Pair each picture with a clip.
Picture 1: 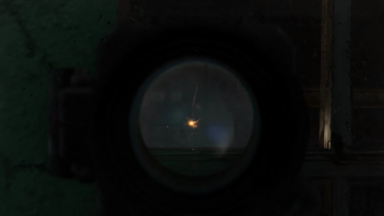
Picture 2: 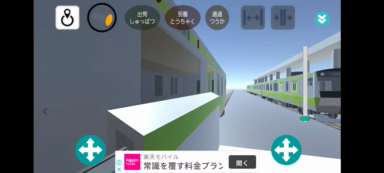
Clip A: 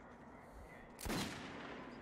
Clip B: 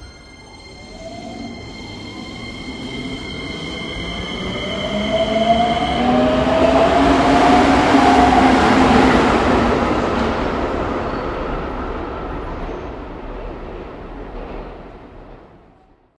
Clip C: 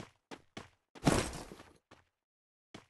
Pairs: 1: A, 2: B